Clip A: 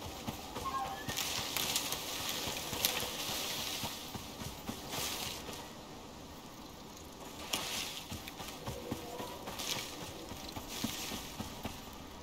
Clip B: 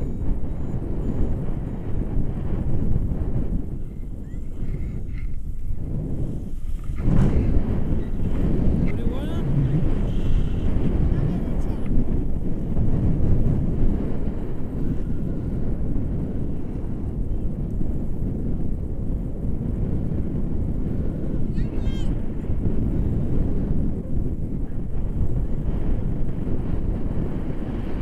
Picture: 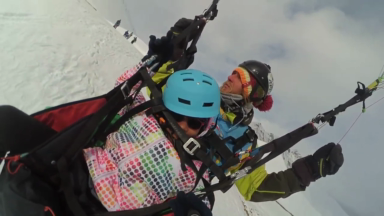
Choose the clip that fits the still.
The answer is B